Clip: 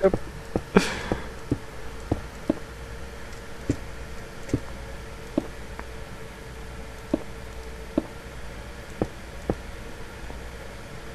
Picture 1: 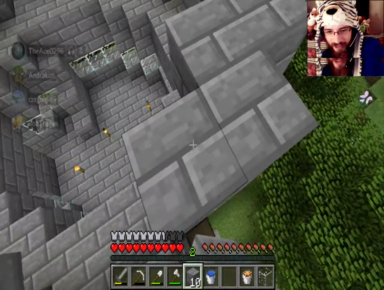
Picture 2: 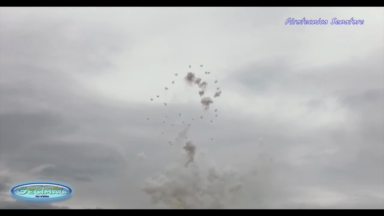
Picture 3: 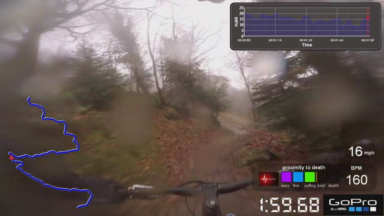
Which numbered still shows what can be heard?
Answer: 1